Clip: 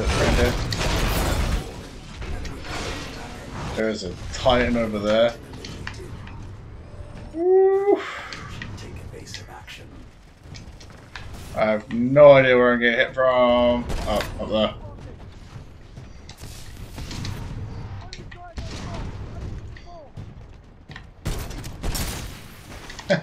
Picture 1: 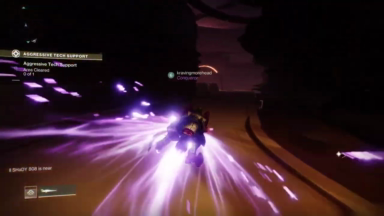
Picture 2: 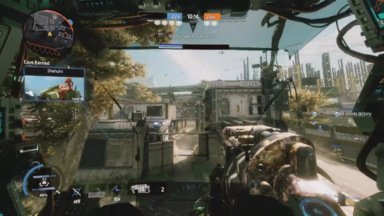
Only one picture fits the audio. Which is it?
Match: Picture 2